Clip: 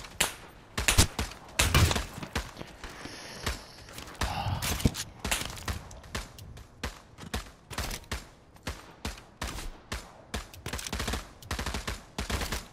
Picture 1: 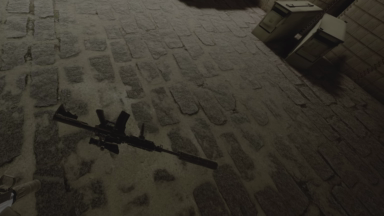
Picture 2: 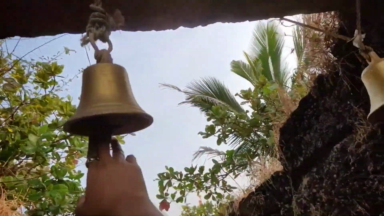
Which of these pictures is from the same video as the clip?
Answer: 1